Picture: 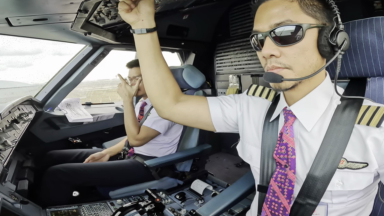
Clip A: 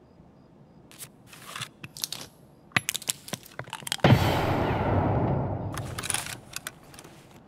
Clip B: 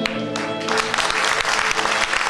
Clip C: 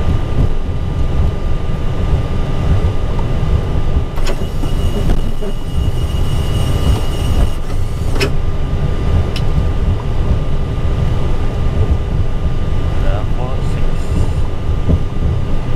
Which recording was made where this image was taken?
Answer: C